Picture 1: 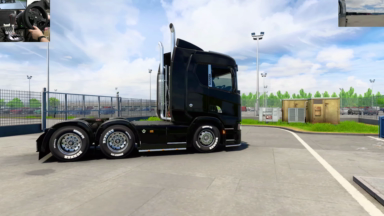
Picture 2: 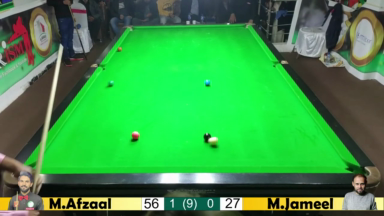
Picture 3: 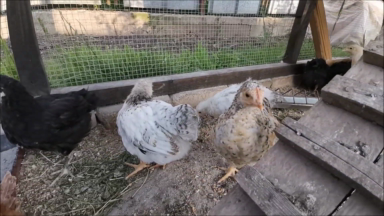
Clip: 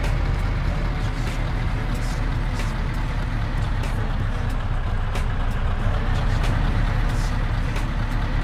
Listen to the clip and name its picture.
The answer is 1